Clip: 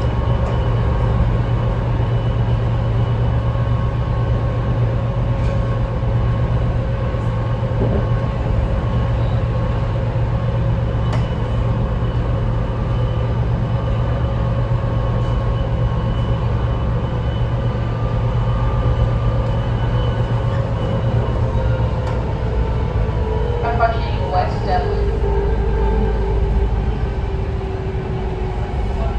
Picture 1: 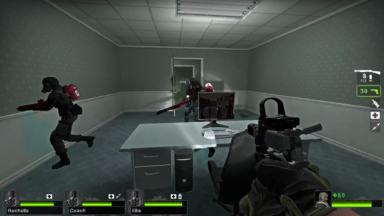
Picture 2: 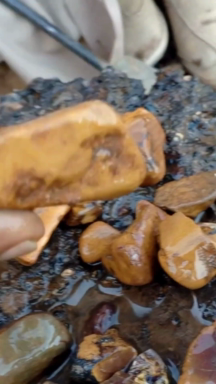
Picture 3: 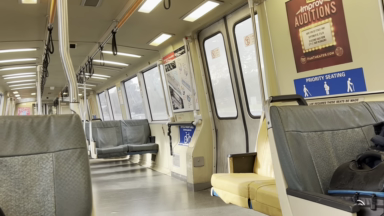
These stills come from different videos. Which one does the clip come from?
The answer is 3